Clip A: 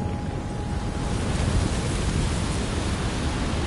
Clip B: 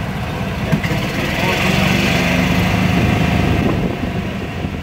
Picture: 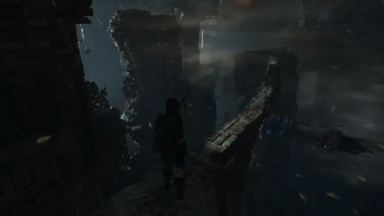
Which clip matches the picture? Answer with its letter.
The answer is A